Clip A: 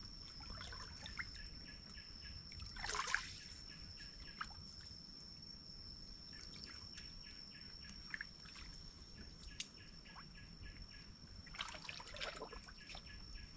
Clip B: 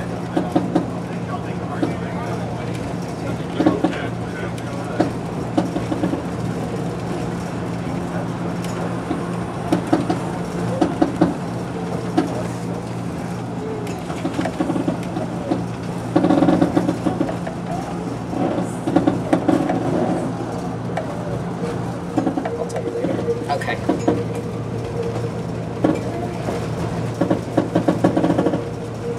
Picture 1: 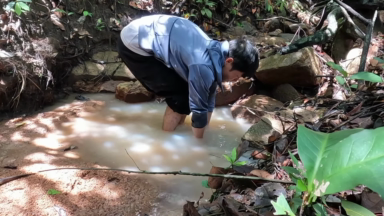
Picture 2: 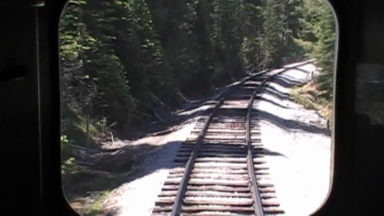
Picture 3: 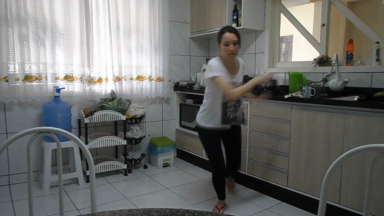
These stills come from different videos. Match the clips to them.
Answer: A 1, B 2